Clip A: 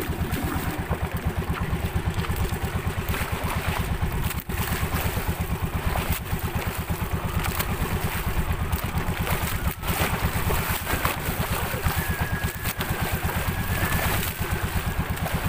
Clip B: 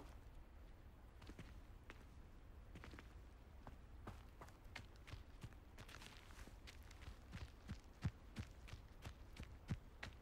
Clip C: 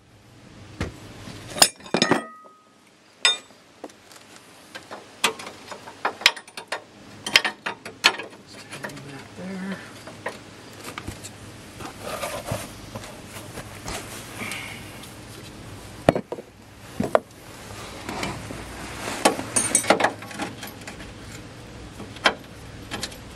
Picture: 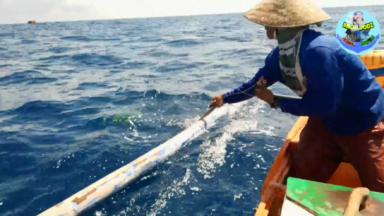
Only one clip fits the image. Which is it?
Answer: A